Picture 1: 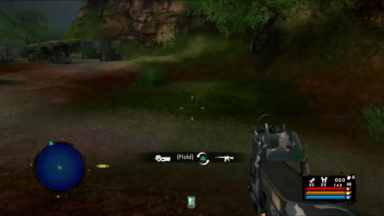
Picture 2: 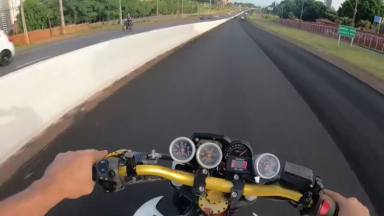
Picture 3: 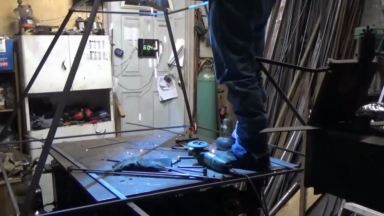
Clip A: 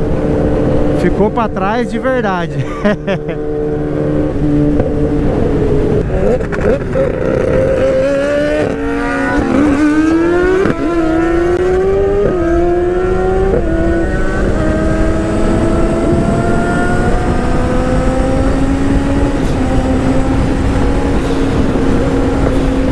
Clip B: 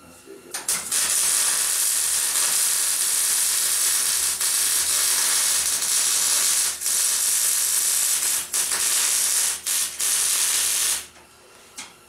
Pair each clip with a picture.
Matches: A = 2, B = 3